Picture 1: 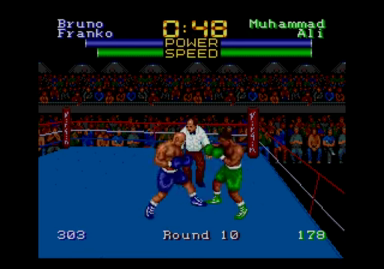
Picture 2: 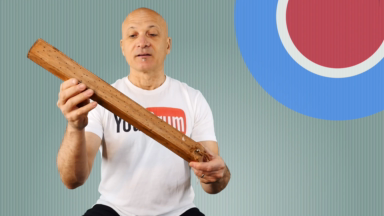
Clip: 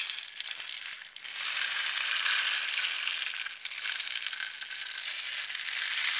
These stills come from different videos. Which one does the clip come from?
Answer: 2